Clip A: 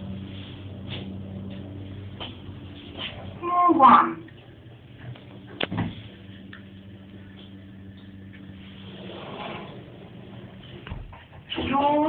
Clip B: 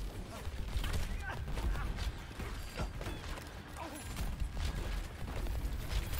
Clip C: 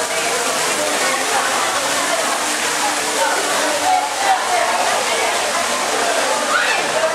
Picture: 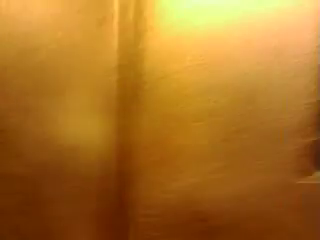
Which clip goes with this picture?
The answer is A